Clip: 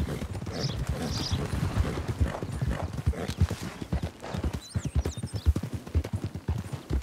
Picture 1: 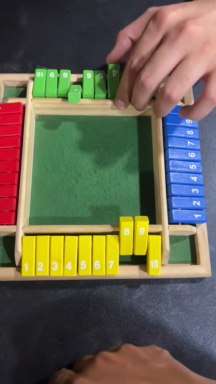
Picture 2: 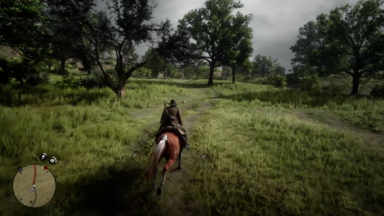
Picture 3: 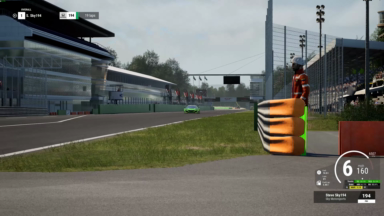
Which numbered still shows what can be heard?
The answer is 2